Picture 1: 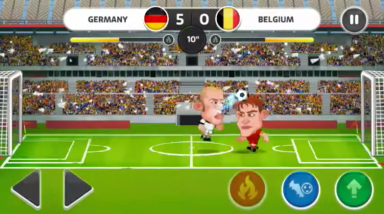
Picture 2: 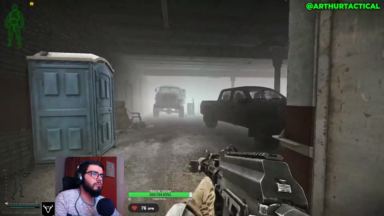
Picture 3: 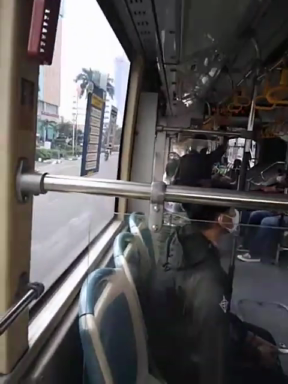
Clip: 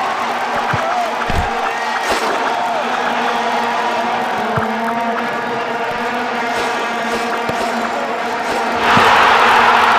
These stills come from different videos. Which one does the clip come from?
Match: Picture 1